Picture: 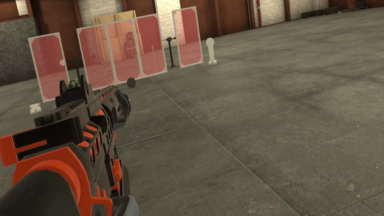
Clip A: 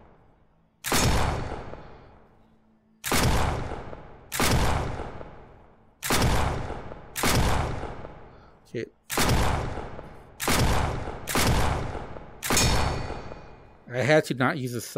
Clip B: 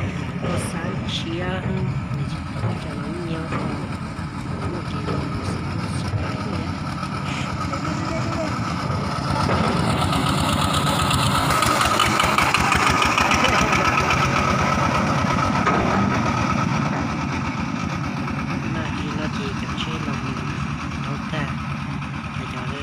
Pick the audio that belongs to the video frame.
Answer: A